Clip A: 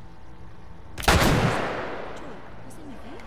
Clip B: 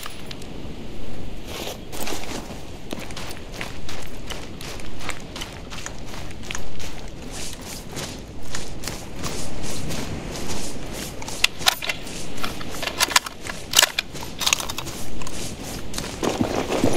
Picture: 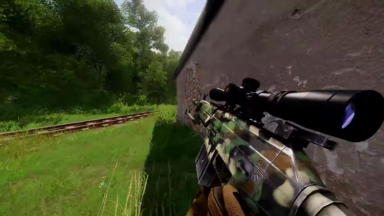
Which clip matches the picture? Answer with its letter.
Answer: B